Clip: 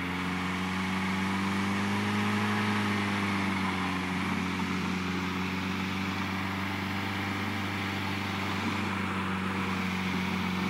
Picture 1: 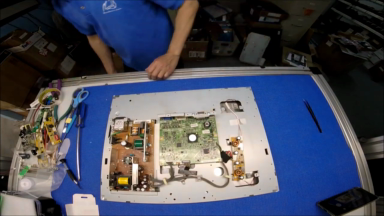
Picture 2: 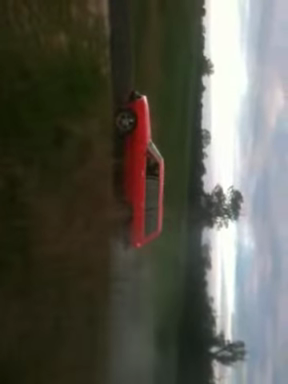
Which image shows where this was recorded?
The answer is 2